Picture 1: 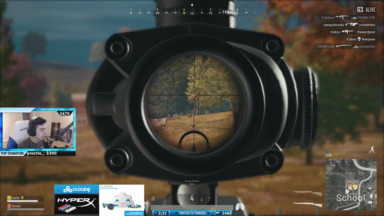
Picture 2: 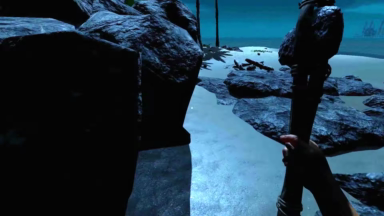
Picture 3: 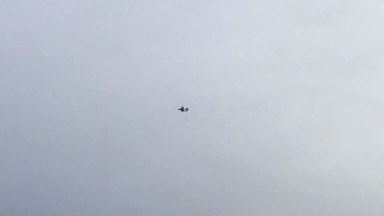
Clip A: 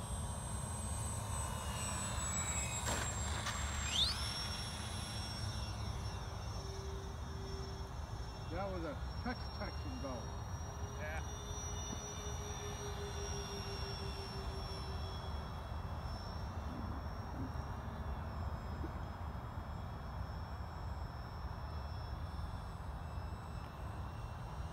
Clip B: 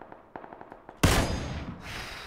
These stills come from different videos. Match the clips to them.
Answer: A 3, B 1